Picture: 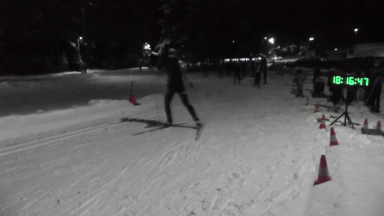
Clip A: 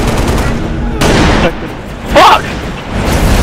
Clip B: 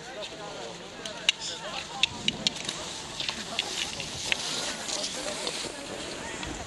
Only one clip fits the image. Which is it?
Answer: B